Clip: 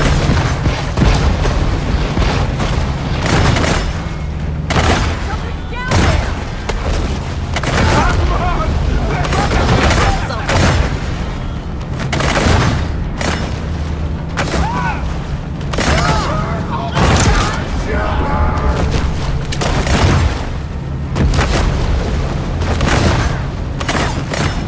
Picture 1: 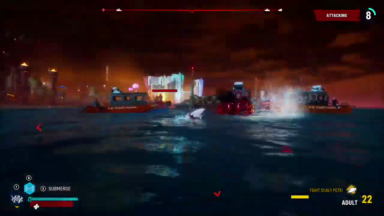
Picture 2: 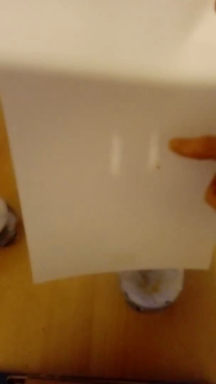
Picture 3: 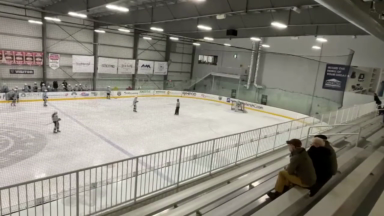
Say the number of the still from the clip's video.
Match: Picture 1